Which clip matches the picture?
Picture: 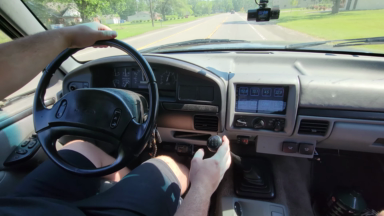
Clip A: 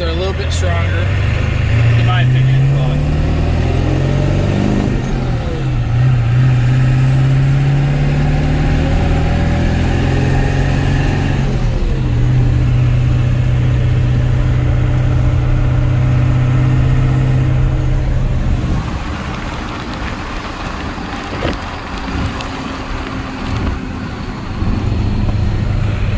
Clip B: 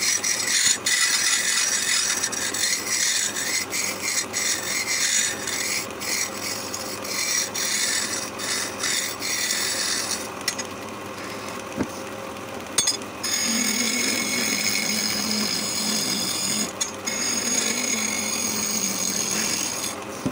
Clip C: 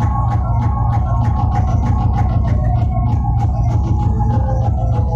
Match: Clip A